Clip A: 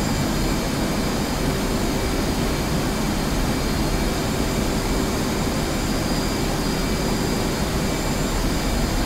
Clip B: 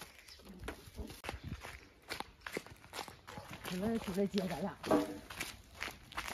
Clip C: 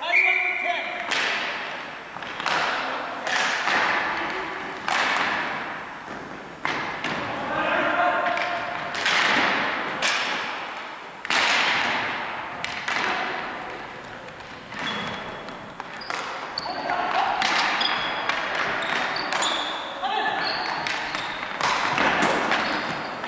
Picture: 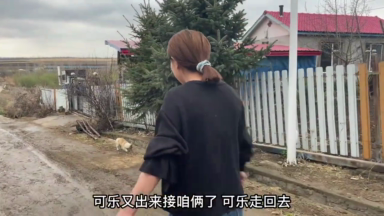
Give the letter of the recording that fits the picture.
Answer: B